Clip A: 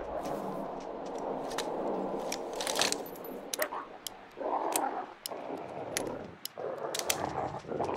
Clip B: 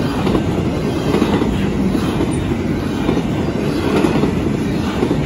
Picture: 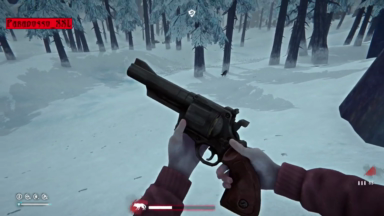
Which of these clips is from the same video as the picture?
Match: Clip A